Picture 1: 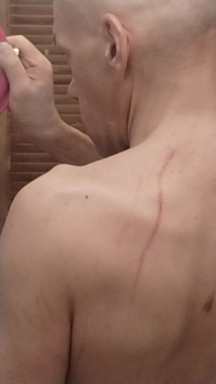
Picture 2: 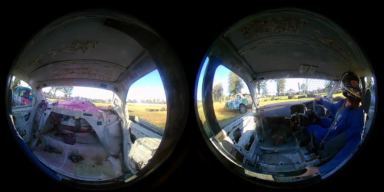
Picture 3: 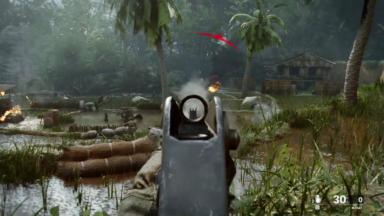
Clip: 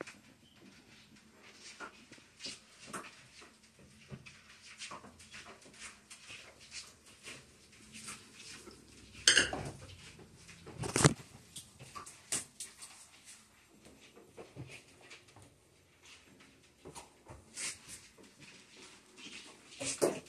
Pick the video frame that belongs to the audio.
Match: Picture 1